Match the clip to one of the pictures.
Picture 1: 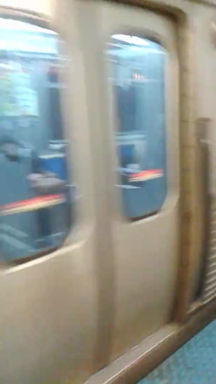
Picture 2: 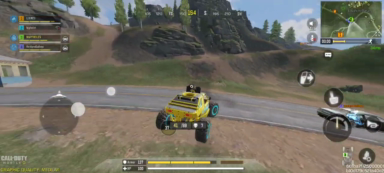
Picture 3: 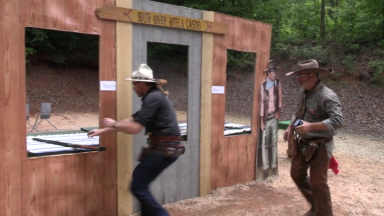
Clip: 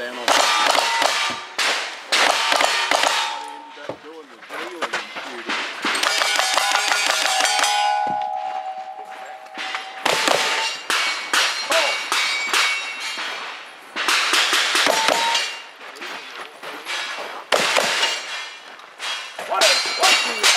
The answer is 3